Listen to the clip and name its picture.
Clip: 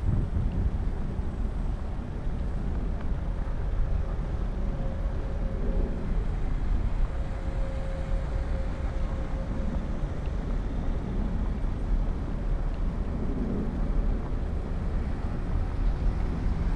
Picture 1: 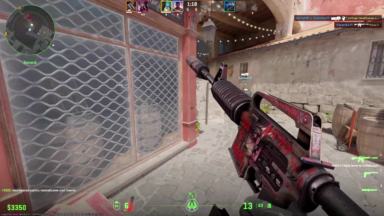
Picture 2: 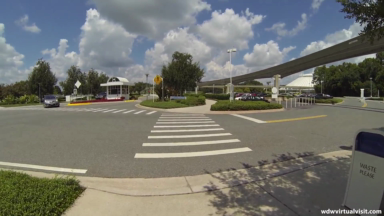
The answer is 2